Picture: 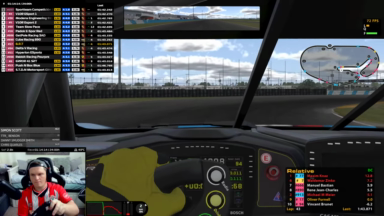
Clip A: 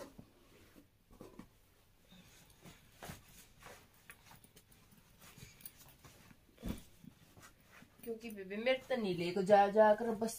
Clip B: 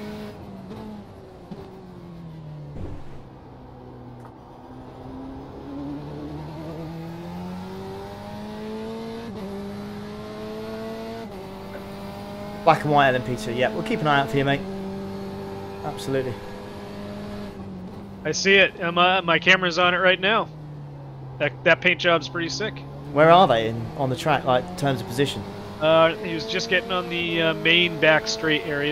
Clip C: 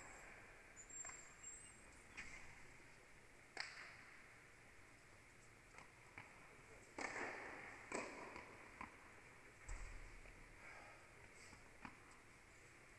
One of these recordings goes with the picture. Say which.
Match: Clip B